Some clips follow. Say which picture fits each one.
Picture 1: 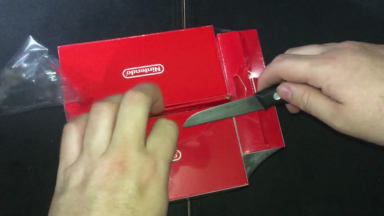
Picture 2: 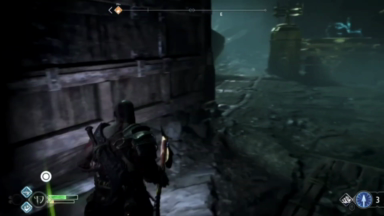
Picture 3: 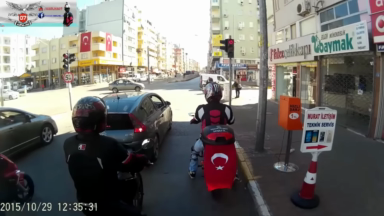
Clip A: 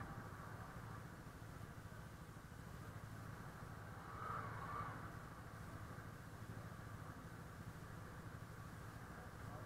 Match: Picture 3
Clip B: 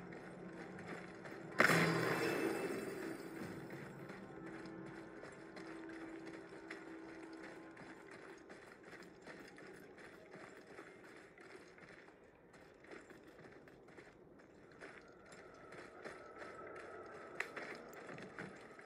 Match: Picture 2